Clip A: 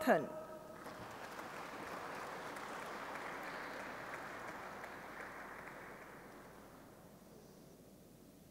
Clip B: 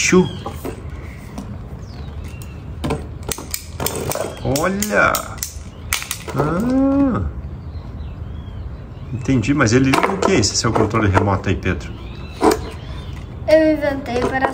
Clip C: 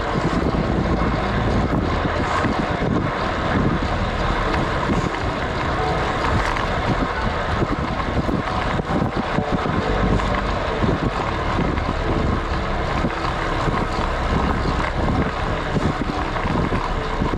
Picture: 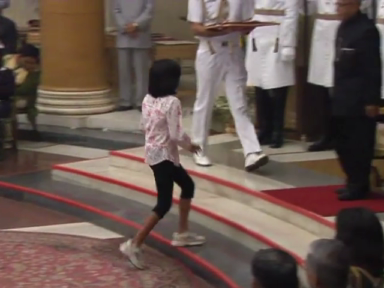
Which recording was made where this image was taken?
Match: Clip A